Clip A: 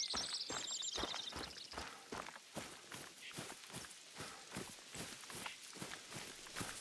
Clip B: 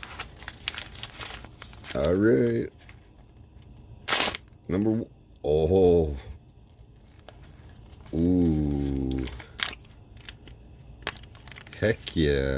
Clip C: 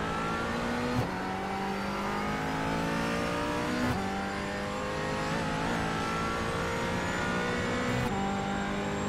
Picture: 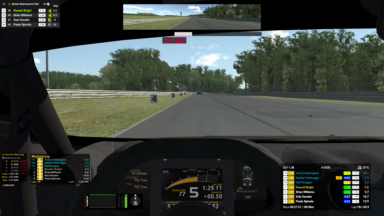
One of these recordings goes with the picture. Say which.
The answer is C